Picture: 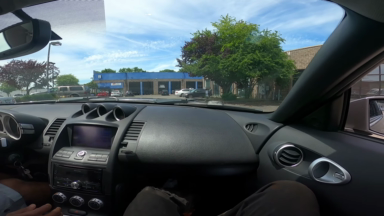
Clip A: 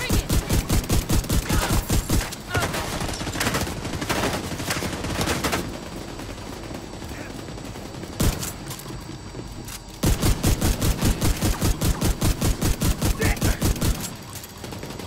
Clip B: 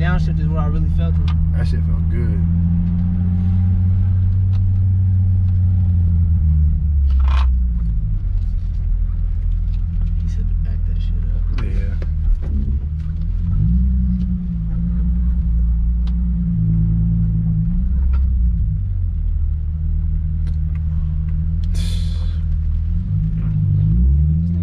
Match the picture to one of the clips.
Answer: B